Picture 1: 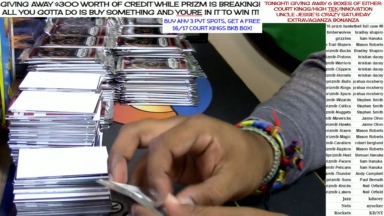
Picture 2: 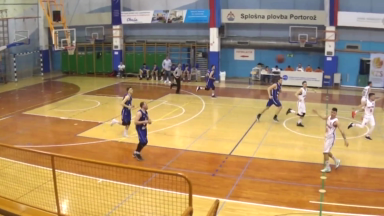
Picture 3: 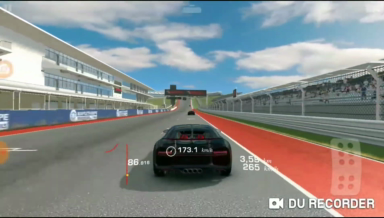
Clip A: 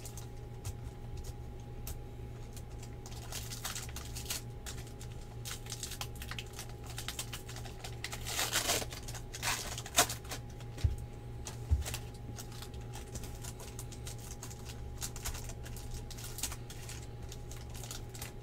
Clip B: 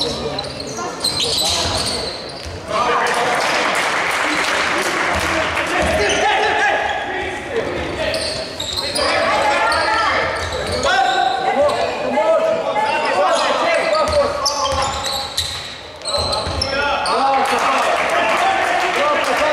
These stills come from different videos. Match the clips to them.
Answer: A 1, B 2